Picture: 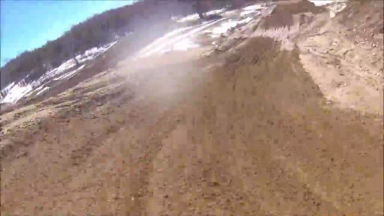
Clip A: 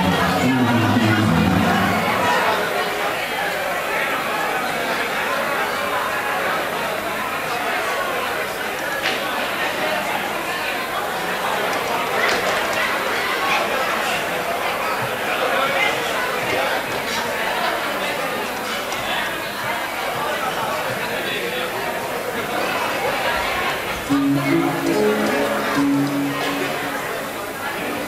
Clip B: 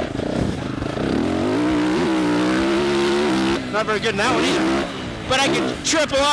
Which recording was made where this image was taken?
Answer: B